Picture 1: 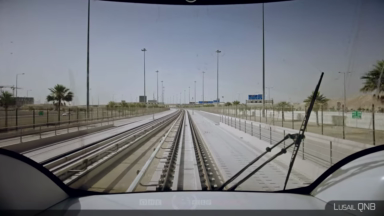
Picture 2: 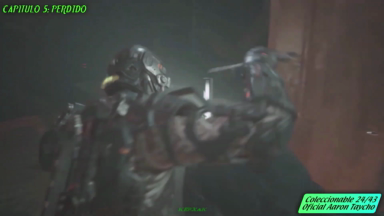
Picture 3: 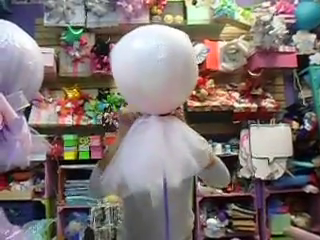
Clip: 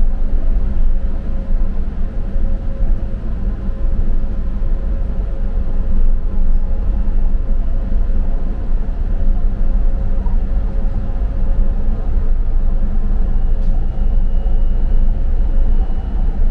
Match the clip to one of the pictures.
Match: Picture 1